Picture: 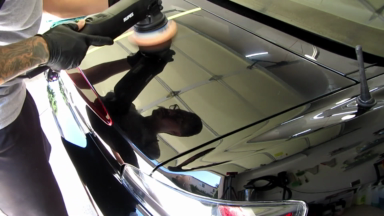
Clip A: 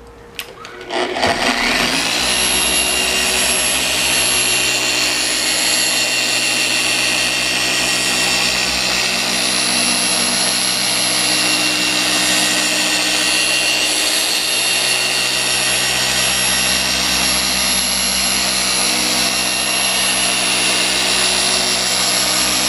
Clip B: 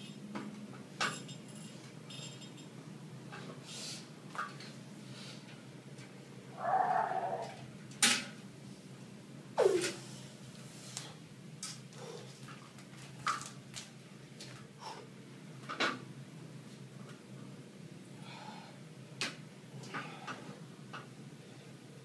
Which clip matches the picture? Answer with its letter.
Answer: A